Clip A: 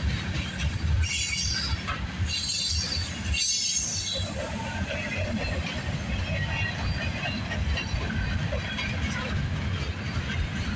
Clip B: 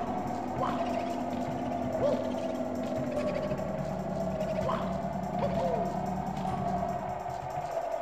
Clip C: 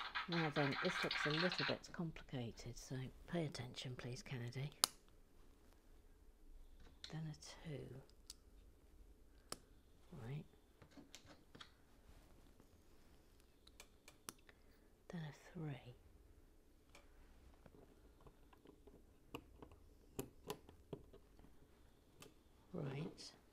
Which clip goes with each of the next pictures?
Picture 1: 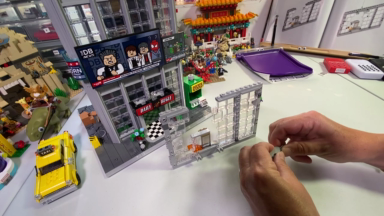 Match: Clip C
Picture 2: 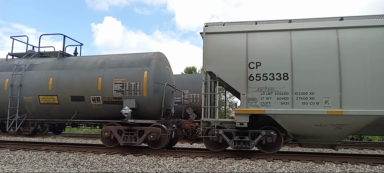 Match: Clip A